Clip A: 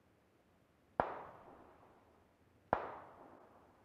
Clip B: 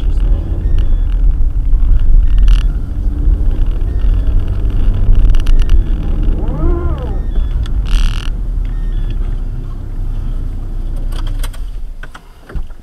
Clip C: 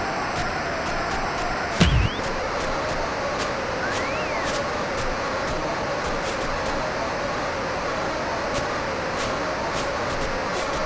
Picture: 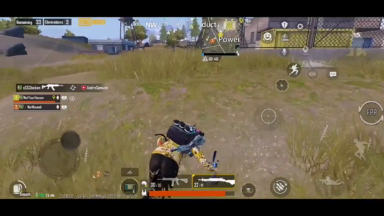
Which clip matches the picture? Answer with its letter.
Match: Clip A